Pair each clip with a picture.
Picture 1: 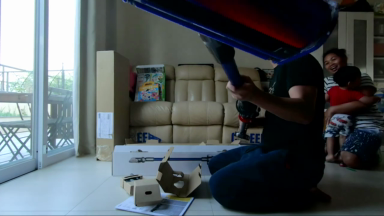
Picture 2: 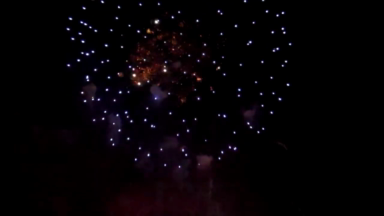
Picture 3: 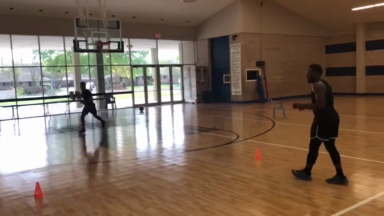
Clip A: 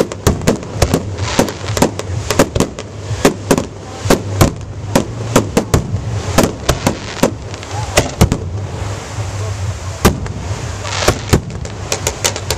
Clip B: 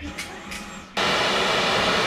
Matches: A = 2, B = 1